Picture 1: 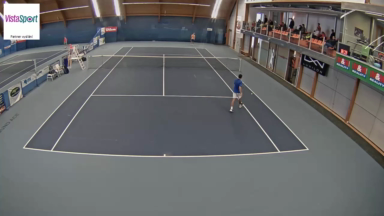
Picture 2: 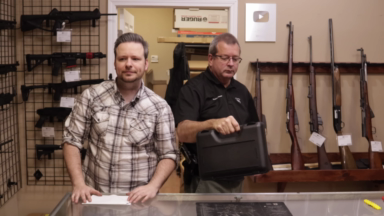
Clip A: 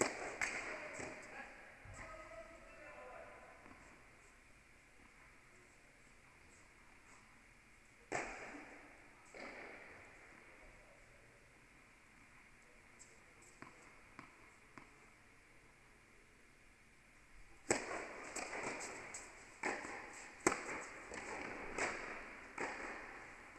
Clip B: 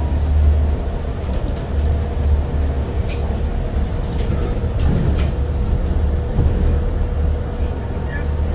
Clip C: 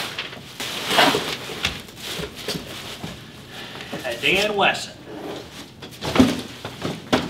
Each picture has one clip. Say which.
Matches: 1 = A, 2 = C